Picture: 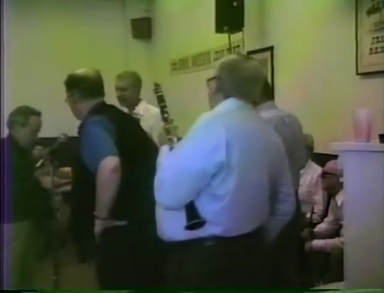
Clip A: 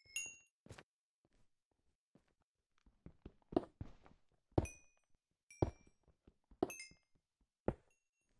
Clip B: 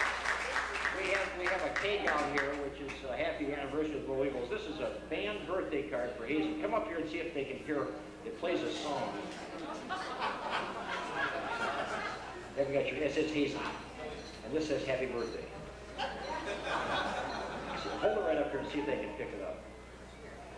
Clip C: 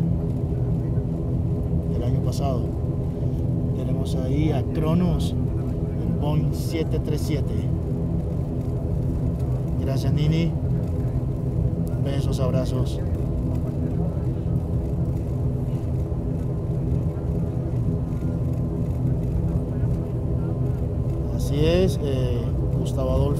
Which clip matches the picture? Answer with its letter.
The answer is B